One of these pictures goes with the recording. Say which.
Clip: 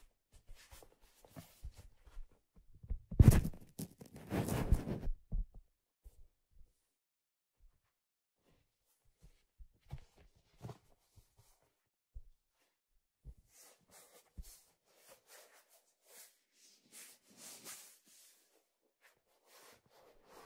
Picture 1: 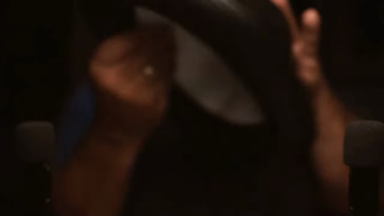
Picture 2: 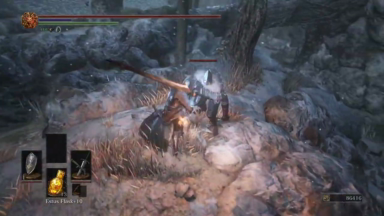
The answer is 1